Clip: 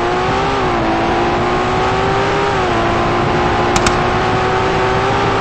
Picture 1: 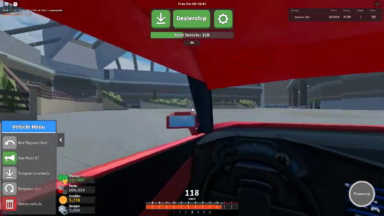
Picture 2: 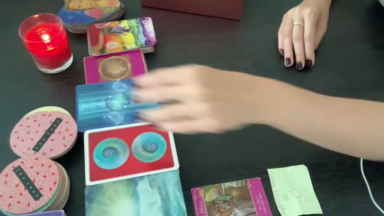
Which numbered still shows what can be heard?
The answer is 1